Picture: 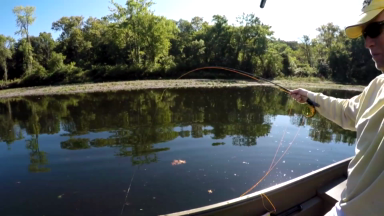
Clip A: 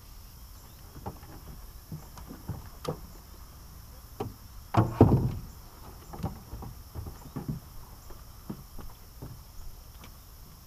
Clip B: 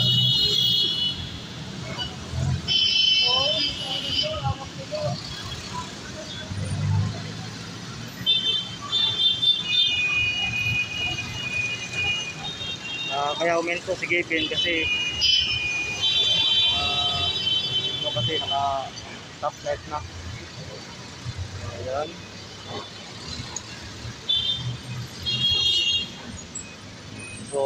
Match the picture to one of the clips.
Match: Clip A